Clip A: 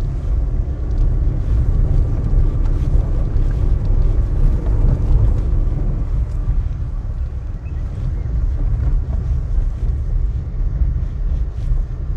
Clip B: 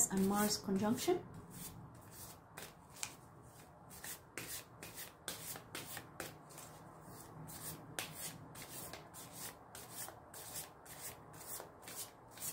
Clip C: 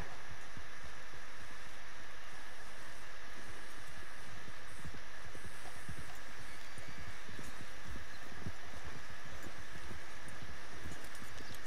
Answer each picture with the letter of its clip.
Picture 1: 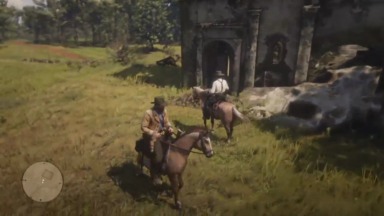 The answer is C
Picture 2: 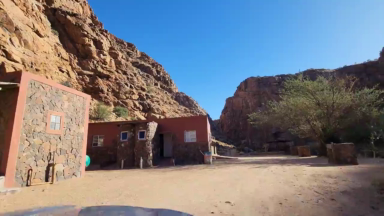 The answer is A